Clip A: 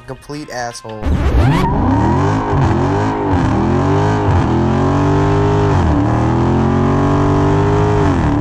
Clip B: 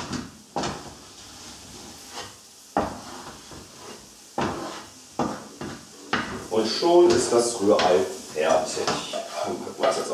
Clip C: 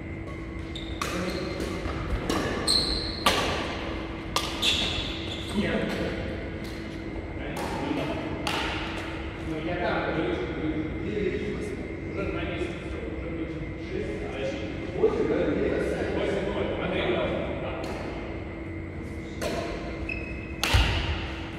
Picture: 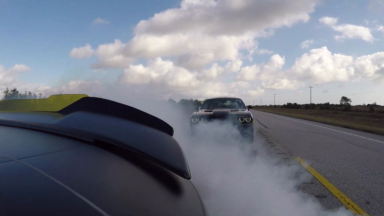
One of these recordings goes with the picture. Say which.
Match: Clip A